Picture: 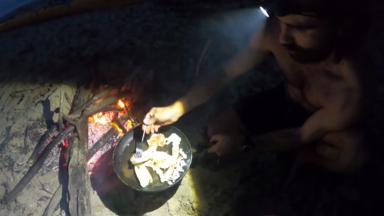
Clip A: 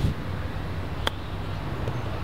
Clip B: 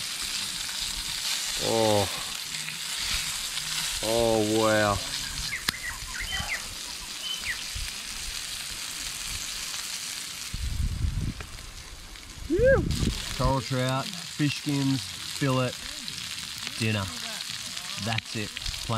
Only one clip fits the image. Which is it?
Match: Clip B